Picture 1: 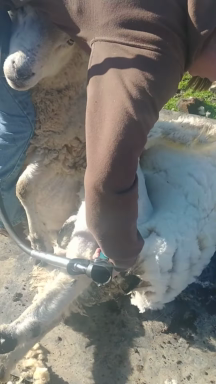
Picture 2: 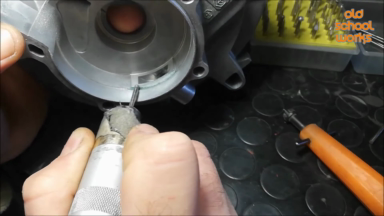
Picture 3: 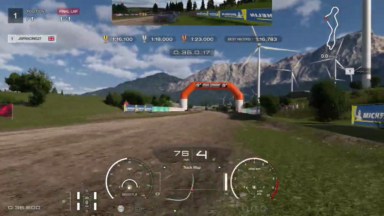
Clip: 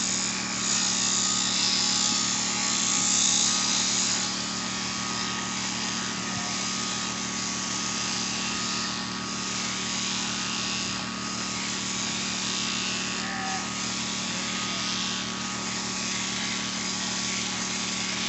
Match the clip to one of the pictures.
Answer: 1